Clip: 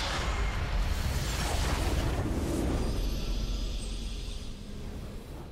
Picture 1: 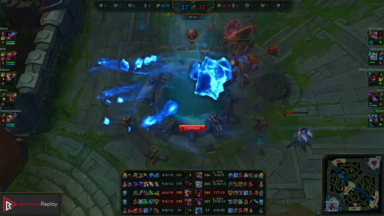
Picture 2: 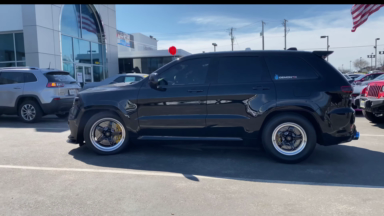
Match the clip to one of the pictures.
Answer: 1